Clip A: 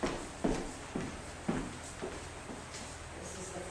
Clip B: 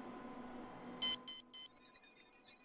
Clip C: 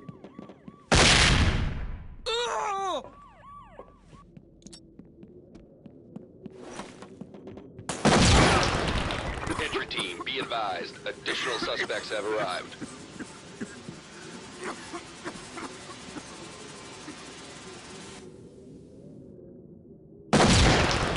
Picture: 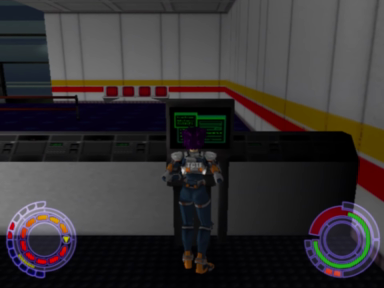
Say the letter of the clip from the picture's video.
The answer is B